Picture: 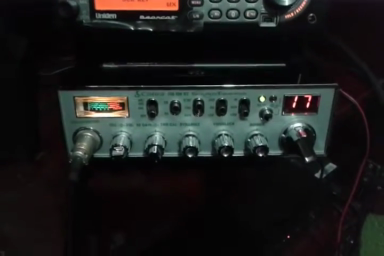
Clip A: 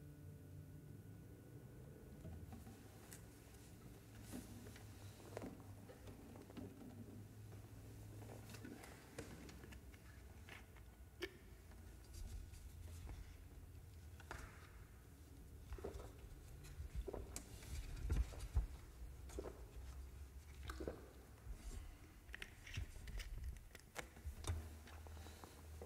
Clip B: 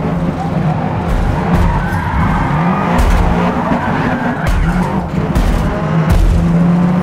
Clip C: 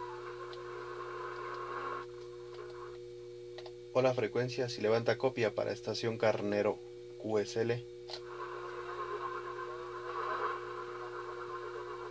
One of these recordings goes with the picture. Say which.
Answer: C